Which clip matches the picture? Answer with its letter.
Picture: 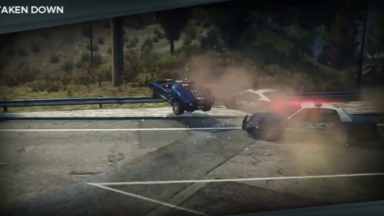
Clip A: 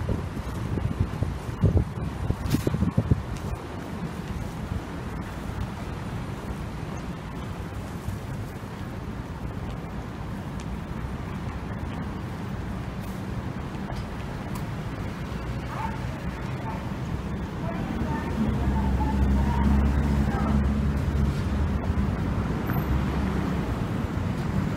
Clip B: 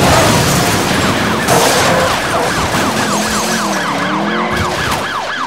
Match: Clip B